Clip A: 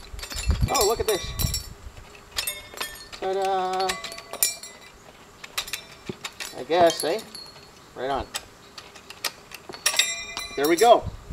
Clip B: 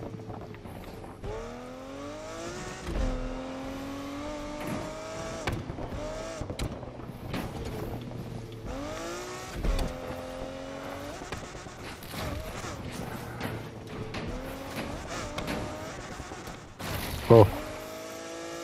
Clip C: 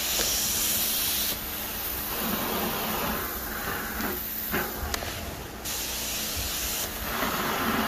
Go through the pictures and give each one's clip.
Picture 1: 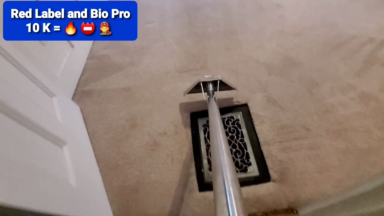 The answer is C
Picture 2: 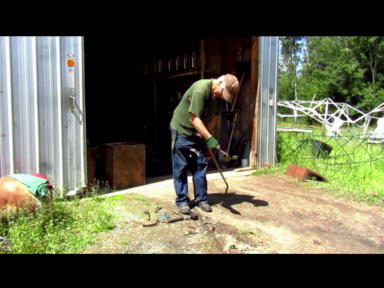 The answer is A